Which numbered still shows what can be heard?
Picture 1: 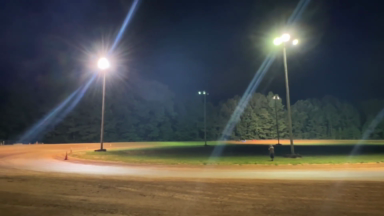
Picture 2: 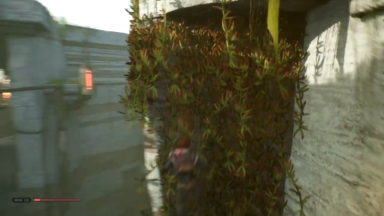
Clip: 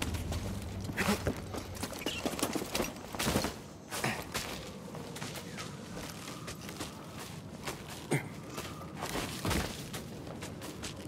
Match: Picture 2